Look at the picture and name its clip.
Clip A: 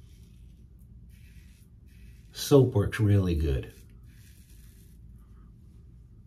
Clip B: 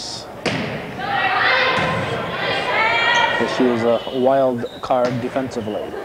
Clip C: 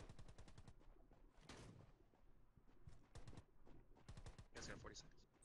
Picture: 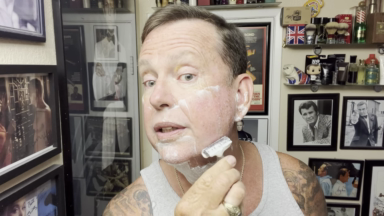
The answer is A